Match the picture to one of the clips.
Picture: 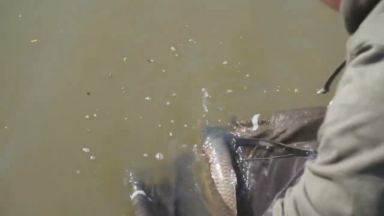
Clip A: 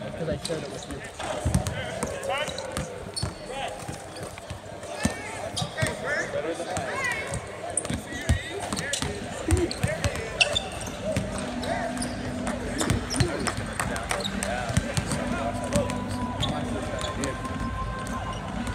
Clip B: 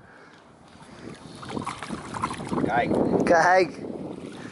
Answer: B